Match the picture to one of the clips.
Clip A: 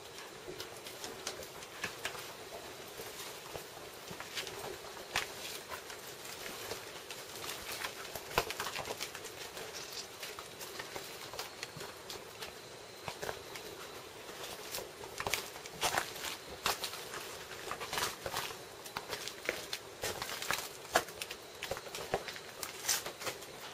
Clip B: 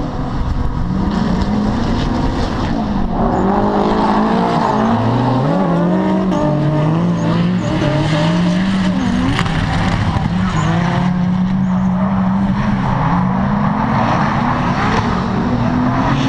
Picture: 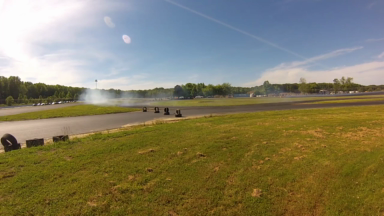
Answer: B